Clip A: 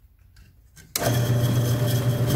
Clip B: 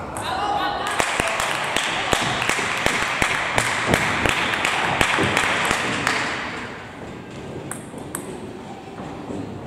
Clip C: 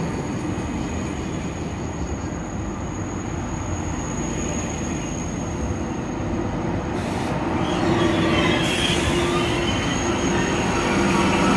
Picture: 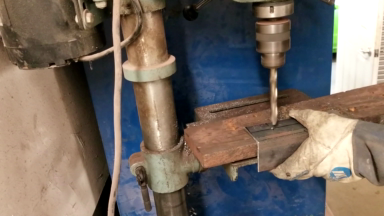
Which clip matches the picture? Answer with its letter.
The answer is A